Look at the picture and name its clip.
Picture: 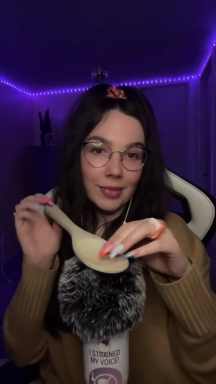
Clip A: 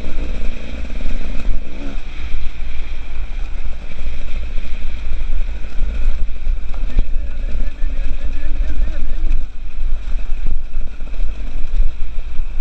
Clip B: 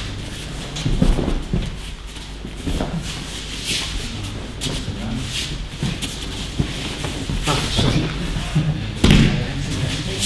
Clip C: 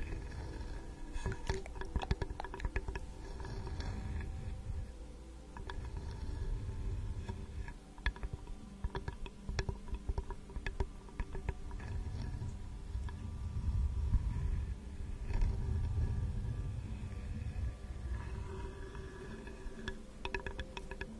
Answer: C